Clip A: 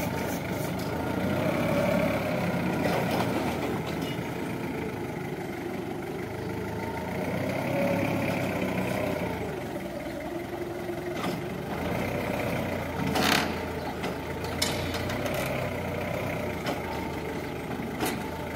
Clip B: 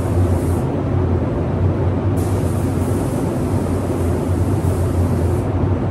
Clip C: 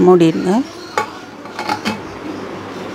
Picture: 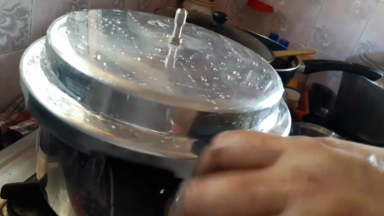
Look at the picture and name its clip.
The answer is C